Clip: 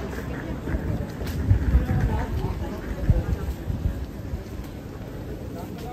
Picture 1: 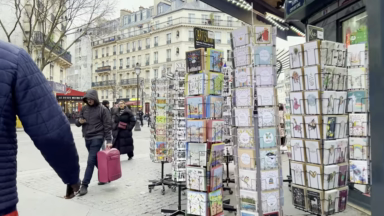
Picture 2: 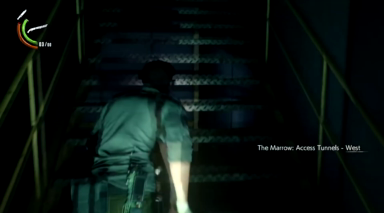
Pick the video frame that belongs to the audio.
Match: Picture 1